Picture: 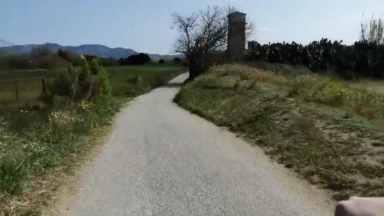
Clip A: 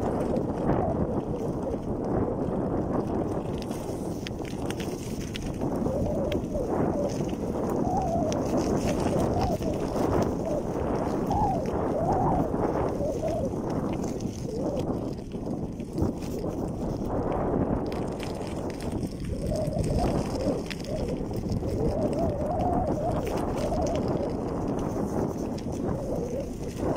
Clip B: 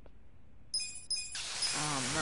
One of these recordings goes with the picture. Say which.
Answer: A